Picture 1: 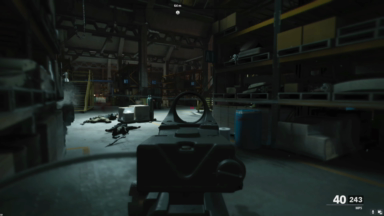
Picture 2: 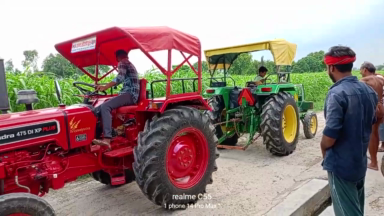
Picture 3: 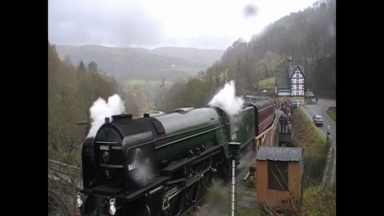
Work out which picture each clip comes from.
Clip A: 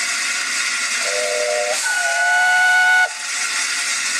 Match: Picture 3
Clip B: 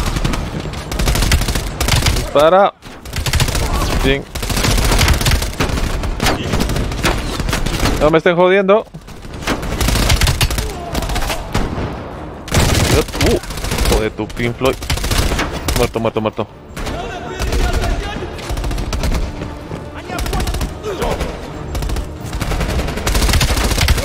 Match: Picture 1